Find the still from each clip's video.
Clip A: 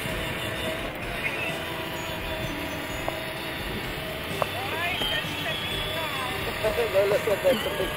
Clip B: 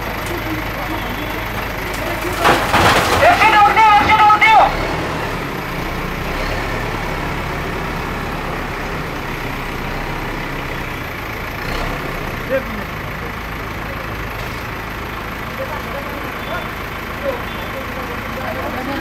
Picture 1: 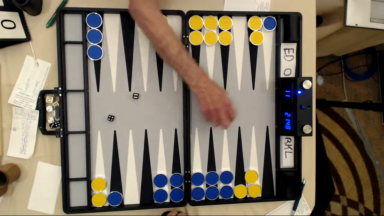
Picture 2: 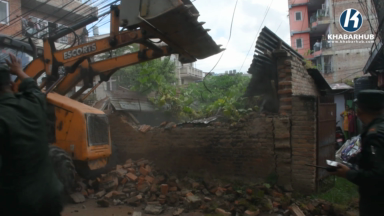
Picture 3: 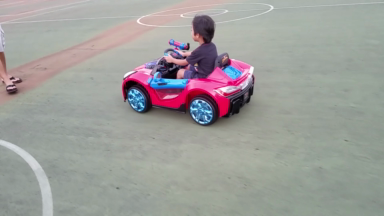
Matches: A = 3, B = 2